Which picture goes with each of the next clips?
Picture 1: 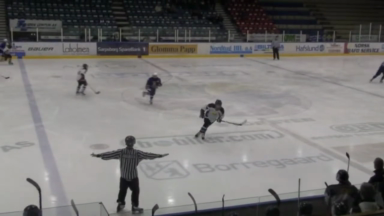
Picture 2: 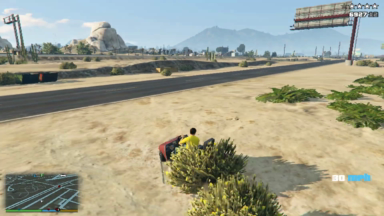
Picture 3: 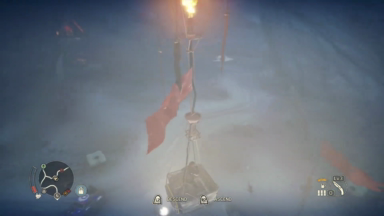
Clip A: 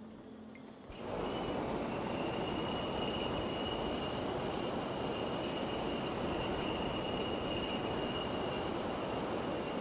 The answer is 3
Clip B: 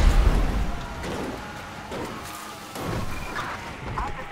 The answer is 2